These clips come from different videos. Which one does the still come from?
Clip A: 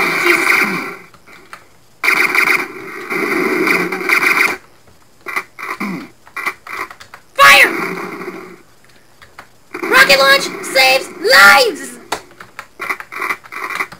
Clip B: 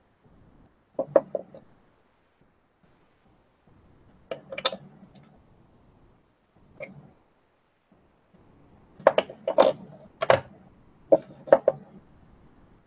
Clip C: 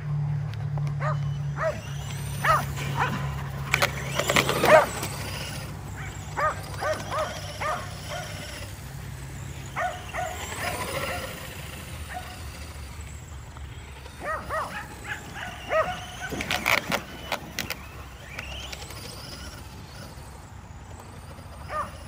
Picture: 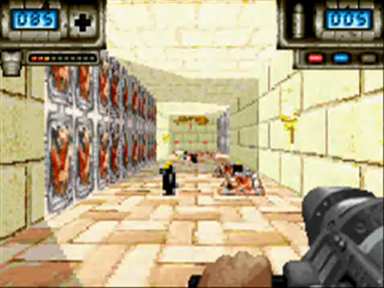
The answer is A